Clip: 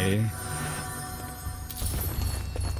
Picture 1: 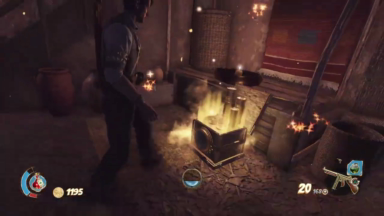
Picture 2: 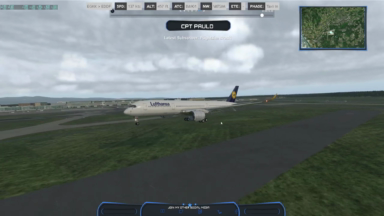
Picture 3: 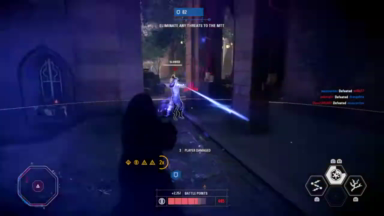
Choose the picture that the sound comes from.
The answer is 1